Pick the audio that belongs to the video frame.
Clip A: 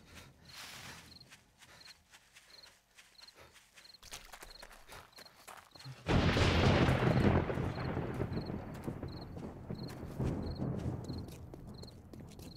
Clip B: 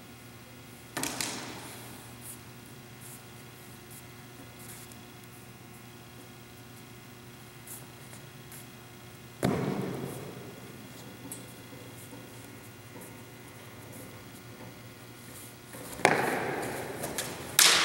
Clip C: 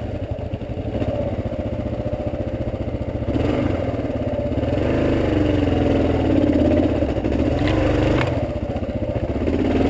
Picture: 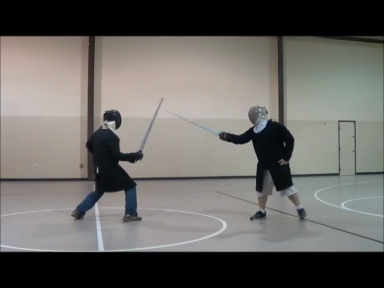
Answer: B